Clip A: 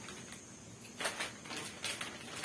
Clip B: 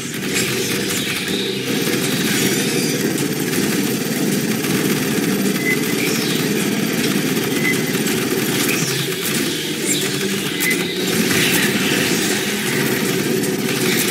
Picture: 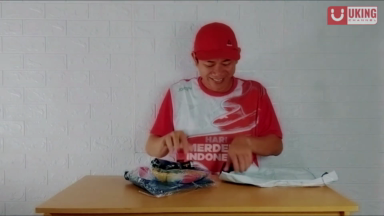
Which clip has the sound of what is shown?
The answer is A